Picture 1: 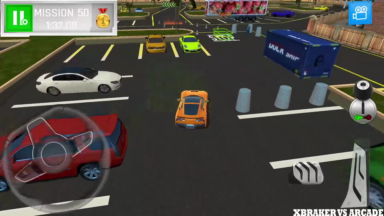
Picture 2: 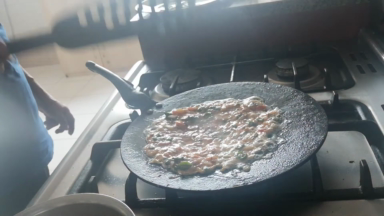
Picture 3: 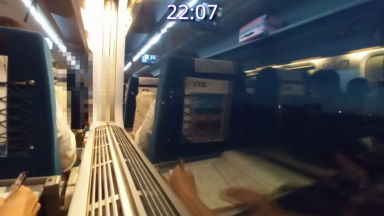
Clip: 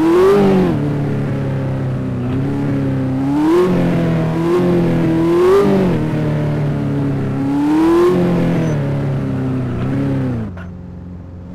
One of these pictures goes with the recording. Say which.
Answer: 1